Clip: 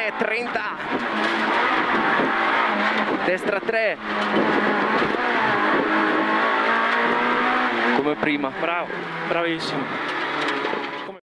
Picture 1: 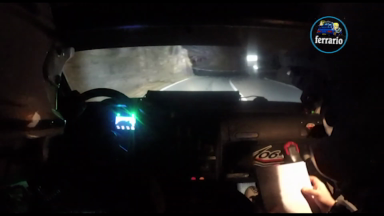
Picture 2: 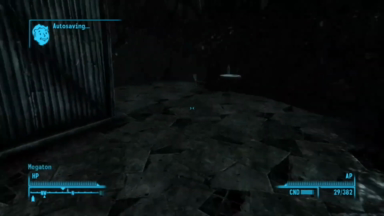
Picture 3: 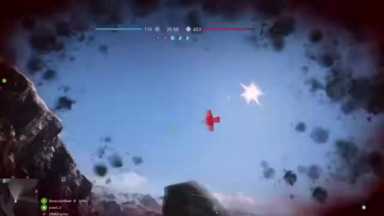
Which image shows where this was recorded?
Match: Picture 1